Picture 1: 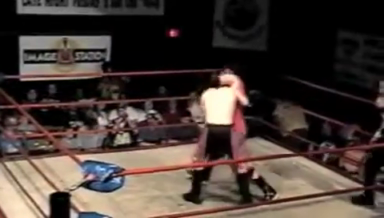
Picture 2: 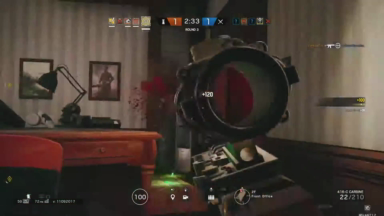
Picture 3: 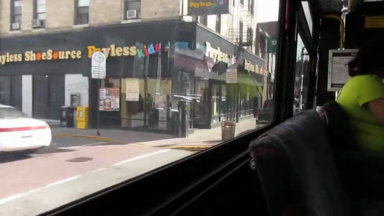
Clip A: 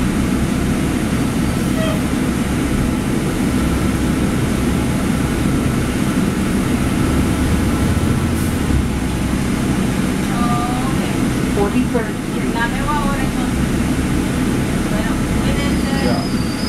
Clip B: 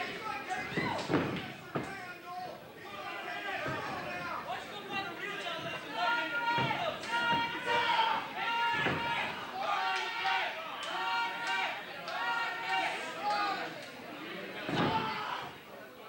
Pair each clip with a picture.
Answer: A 3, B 1